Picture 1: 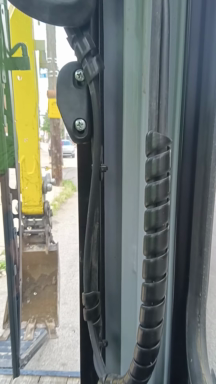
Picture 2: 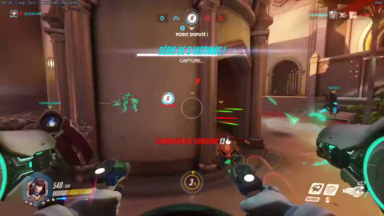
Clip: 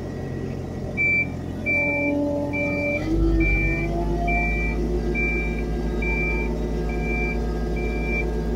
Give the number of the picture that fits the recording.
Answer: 1